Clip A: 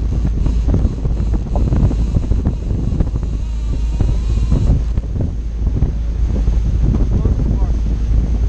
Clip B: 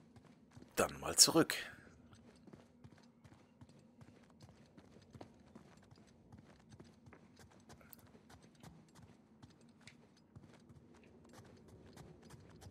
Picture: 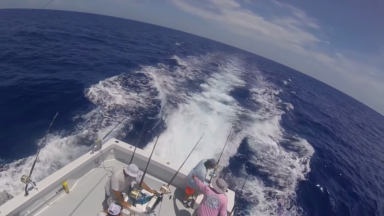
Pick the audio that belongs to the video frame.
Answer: A